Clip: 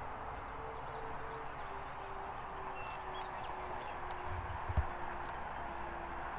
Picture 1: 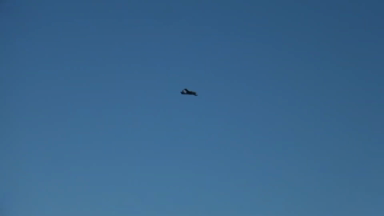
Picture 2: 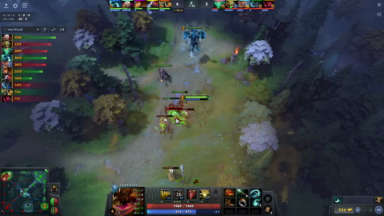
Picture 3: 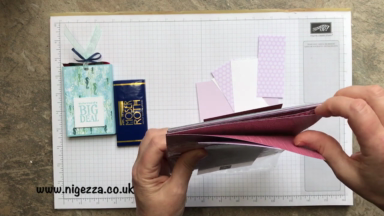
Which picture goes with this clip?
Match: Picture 1